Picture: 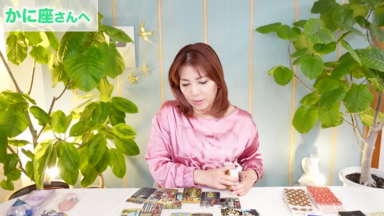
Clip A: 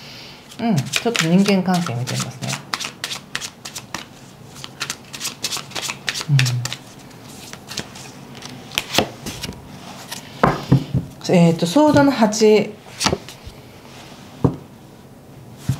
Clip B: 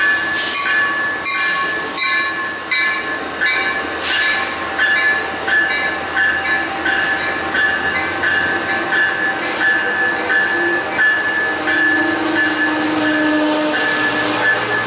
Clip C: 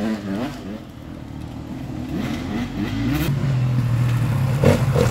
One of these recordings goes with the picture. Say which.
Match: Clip A